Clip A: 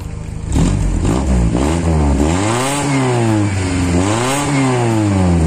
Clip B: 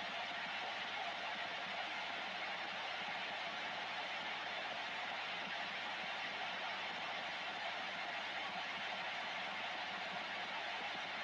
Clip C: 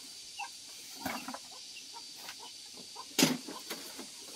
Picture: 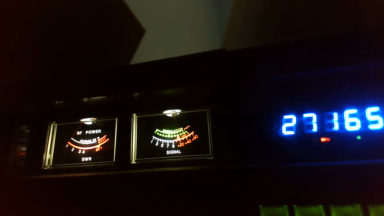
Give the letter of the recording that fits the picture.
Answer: B